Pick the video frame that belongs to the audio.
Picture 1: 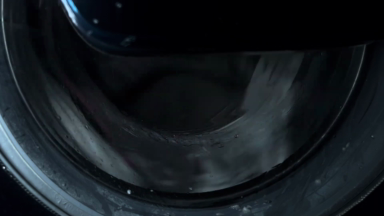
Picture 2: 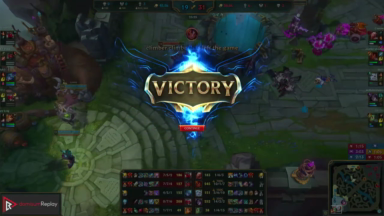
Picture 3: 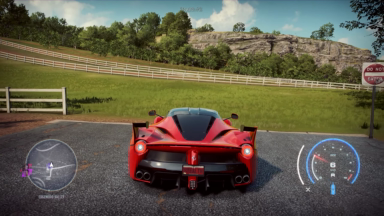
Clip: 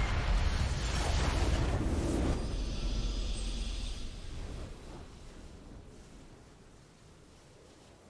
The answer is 2